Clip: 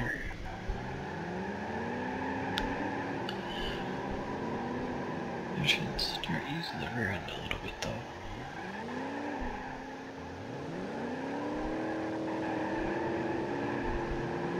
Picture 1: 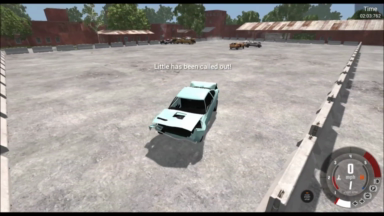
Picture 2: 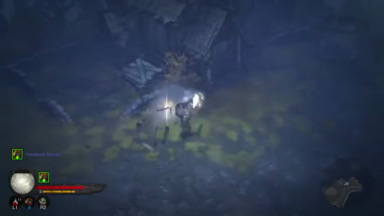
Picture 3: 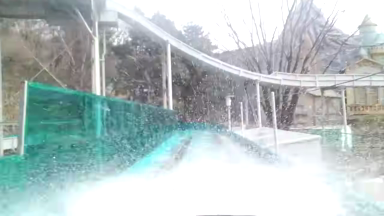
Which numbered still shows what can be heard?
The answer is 1